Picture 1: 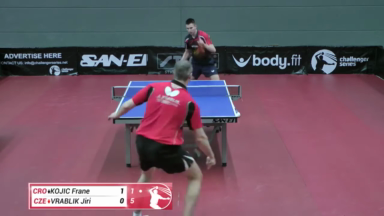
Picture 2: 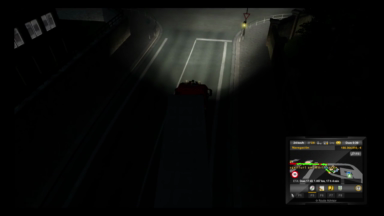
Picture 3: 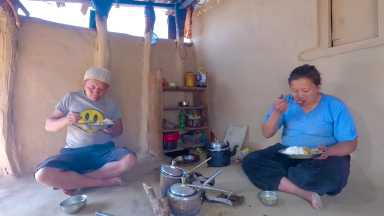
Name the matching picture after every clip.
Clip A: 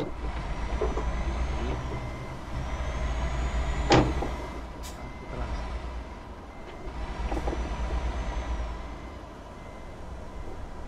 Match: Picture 2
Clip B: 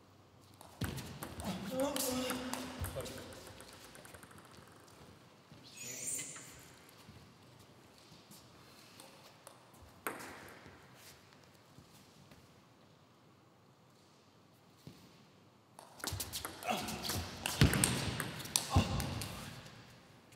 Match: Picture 1